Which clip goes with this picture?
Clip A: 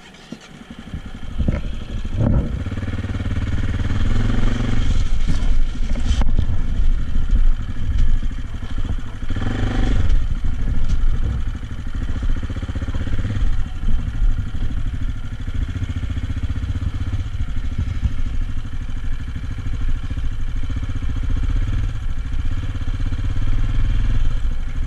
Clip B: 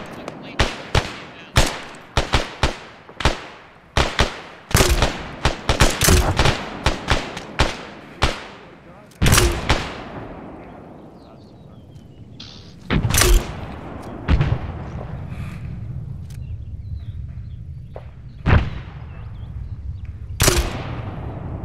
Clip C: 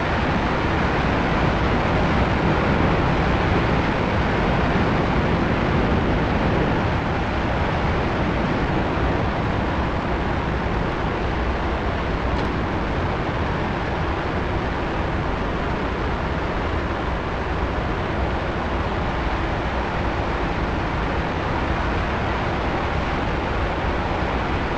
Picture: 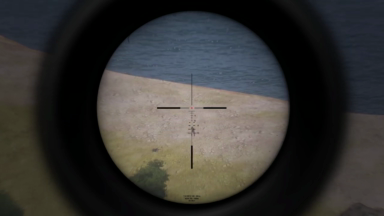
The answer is B